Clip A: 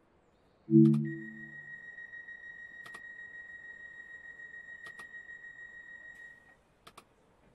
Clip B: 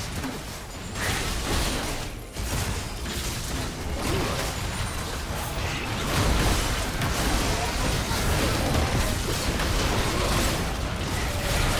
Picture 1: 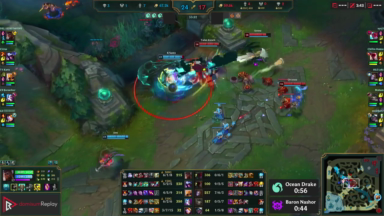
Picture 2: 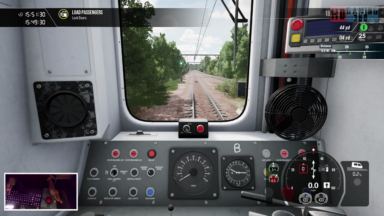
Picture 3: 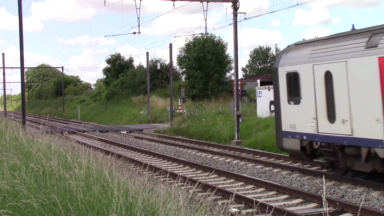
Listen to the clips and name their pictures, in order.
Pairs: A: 2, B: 1